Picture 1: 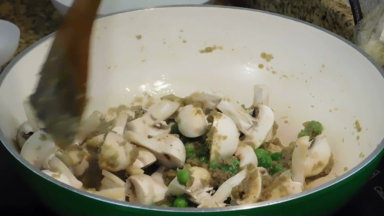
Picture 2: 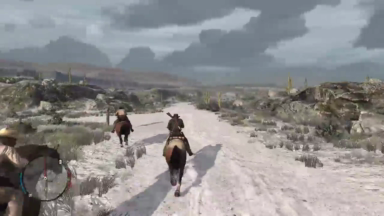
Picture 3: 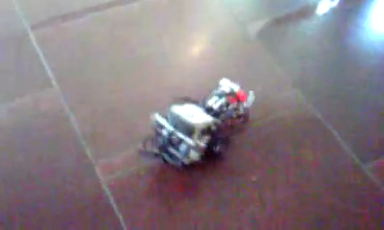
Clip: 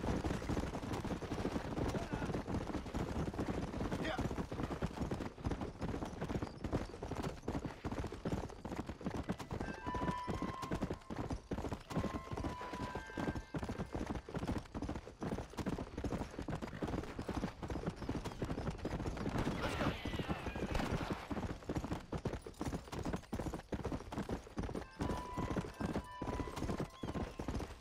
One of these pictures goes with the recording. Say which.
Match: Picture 2